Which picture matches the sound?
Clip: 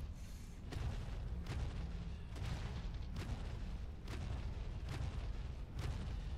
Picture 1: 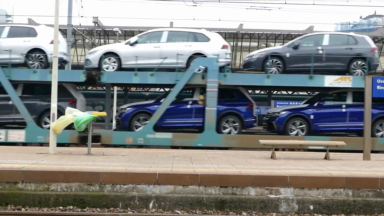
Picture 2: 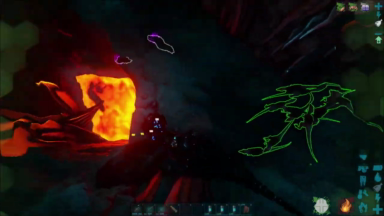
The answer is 2